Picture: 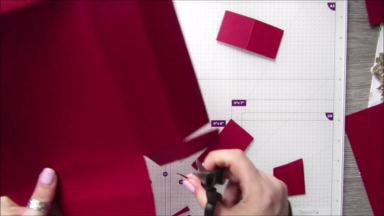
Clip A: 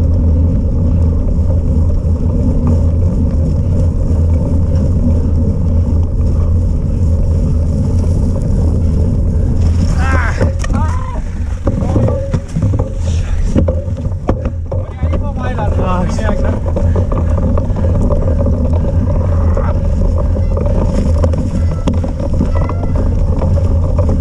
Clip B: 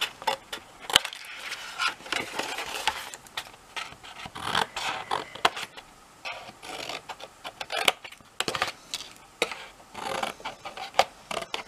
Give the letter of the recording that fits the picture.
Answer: B